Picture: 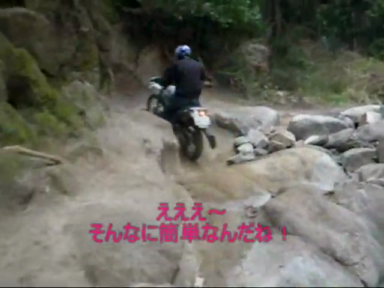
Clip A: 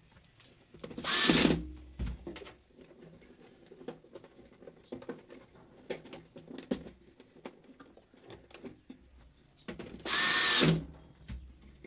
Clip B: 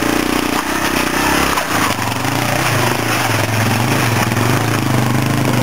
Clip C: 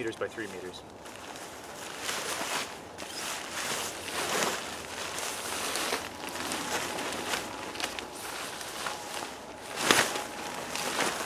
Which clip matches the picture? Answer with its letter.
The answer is B